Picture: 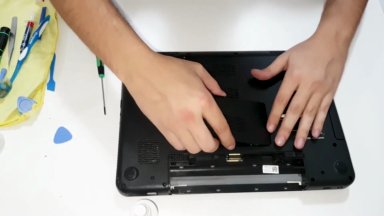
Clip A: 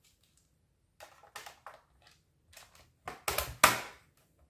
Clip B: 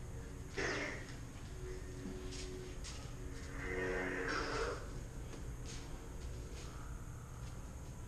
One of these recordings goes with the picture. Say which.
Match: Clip A